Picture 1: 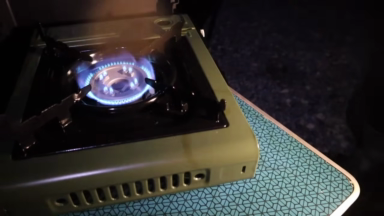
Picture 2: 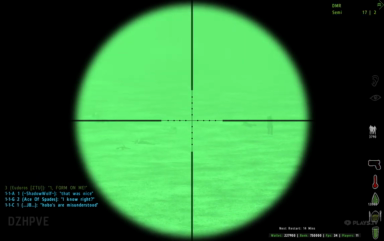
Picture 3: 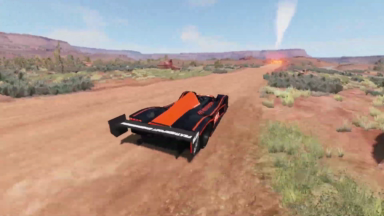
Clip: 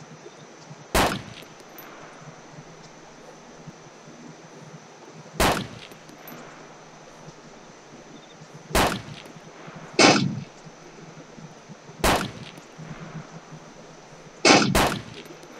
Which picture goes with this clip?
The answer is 2